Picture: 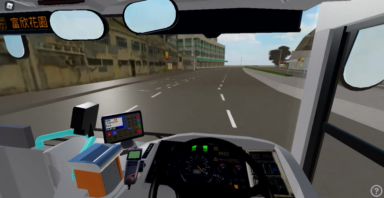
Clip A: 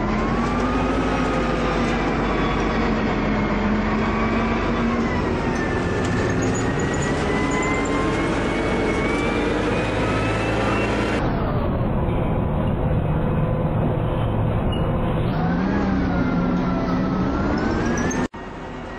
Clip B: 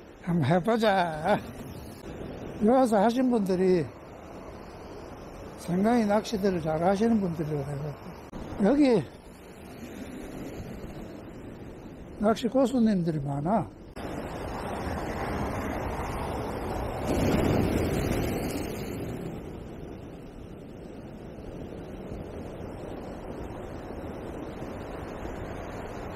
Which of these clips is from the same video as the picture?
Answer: A